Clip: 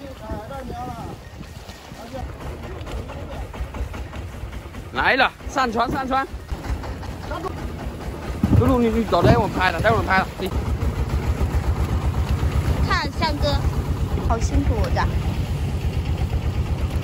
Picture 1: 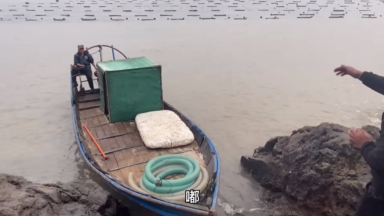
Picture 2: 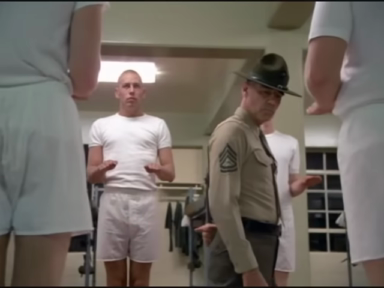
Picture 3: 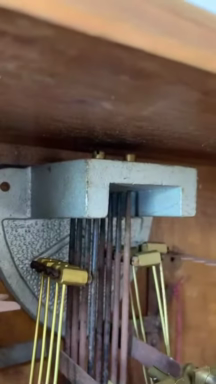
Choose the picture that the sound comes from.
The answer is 1